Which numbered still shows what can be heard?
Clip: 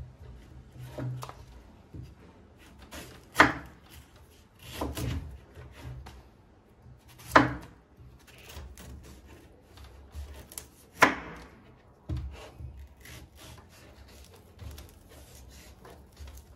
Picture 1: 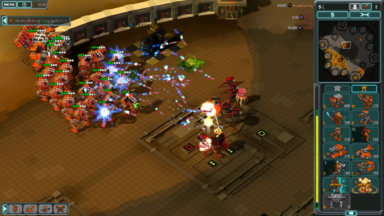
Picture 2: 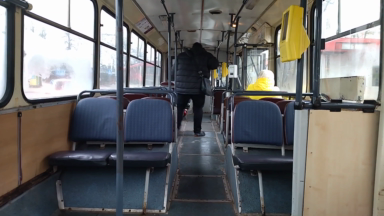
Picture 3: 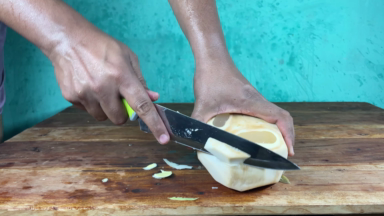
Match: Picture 3